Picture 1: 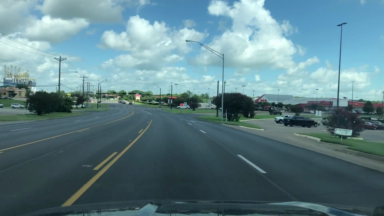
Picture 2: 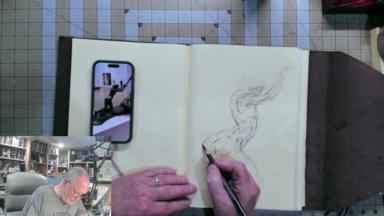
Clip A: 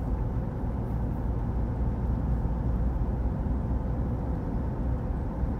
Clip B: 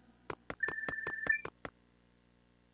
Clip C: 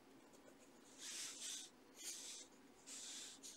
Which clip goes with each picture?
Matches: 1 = A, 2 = C